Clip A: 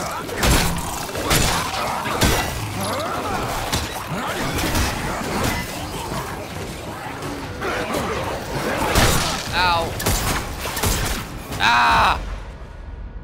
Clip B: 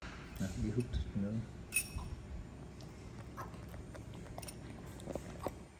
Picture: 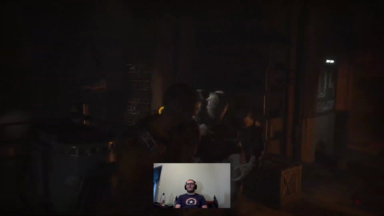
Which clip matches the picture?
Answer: A